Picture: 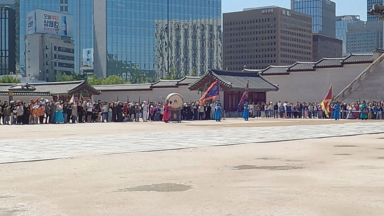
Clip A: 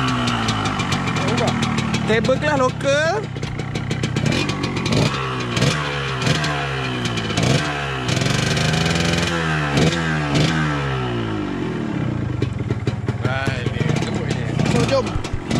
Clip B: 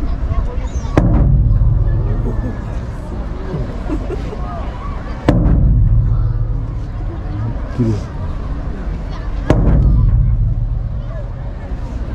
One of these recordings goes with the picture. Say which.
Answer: B